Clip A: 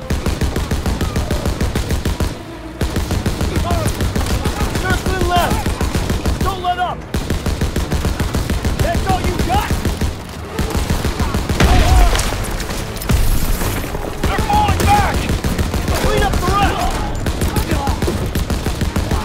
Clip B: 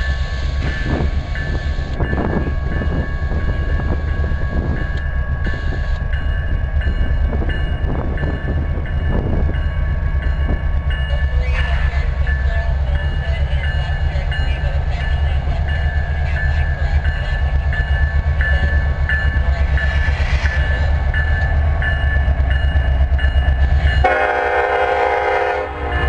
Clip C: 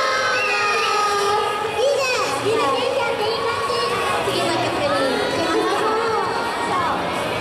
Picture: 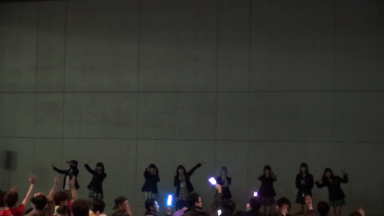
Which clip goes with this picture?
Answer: C